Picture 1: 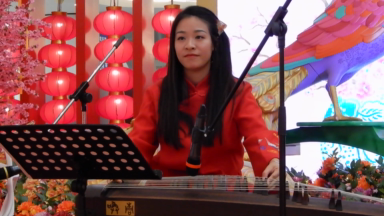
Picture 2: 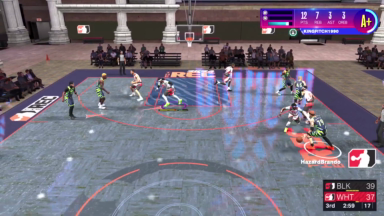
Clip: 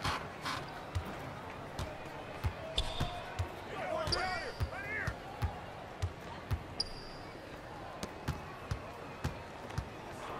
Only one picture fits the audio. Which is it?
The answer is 2